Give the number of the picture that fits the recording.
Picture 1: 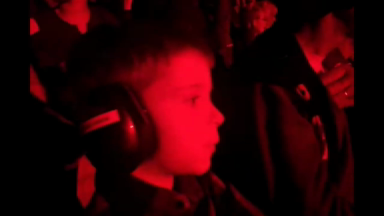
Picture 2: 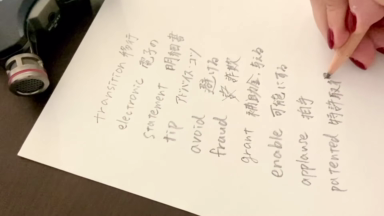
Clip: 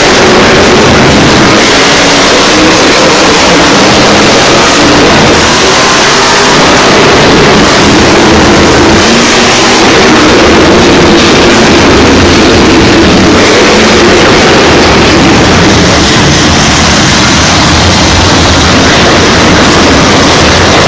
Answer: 1